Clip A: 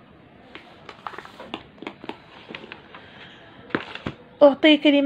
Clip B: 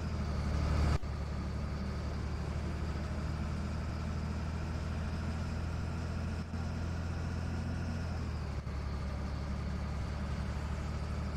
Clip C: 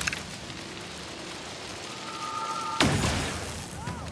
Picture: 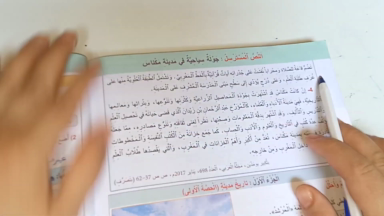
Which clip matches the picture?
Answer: A